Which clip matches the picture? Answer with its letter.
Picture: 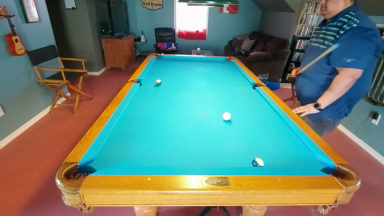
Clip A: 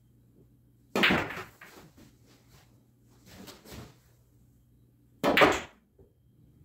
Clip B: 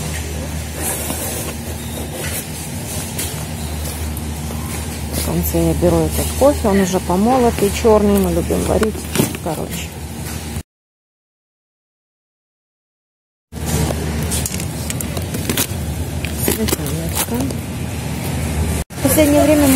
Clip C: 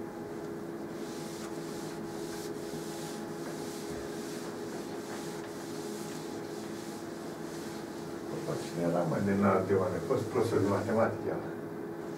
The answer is A